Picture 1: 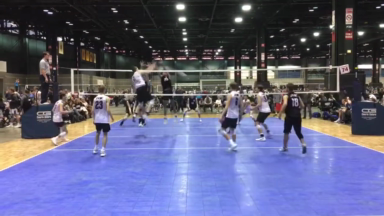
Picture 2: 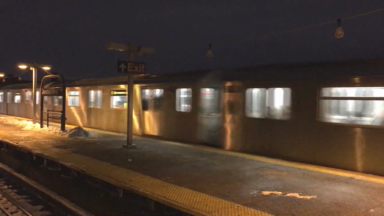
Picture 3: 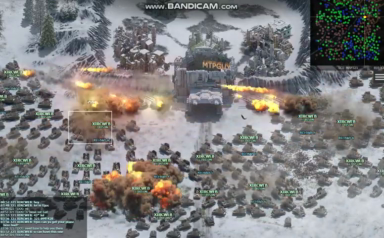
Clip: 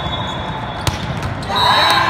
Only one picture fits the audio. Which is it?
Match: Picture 1